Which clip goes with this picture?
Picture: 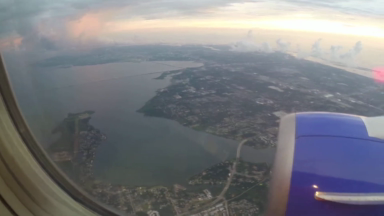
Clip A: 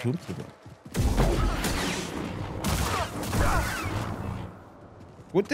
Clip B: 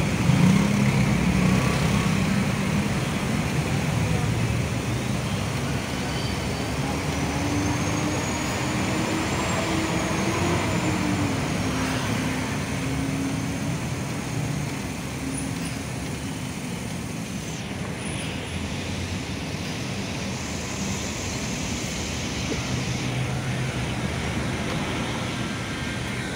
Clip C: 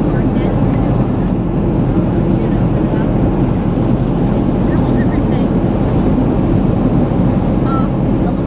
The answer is C